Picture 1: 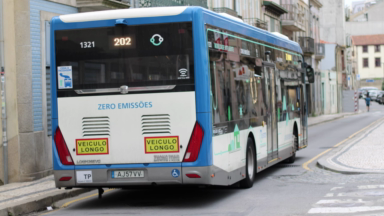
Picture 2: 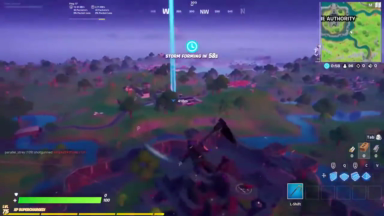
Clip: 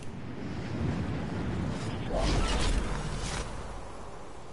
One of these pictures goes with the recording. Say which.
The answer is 2